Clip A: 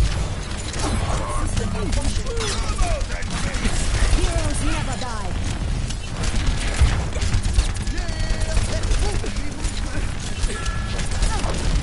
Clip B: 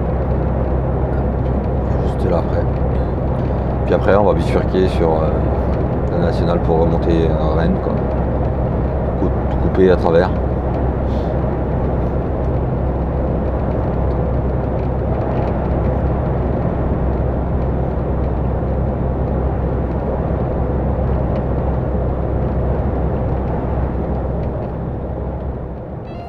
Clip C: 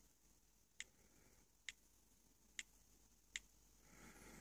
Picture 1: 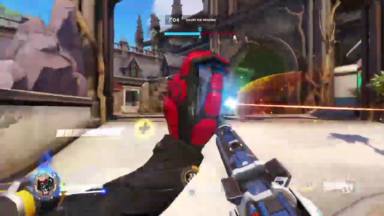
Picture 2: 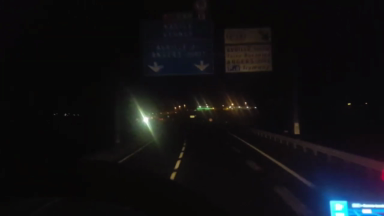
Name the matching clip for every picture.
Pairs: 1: A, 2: B